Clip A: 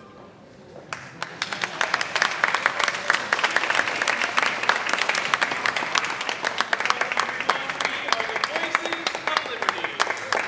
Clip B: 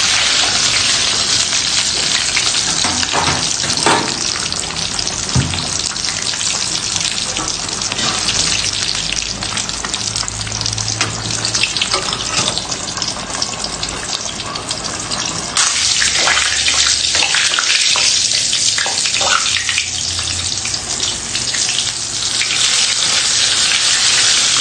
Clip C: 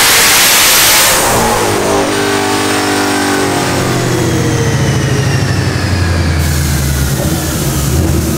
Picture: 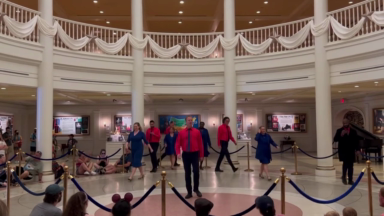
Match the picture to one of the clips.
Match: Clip A